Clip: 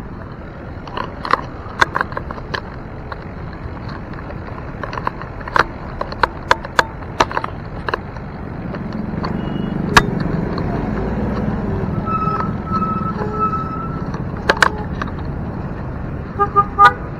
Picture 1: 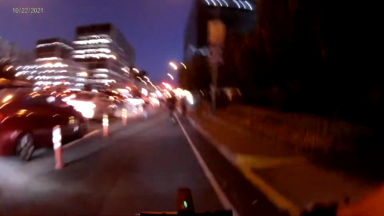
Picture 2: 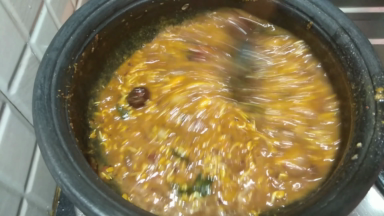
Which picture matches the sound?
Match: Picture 1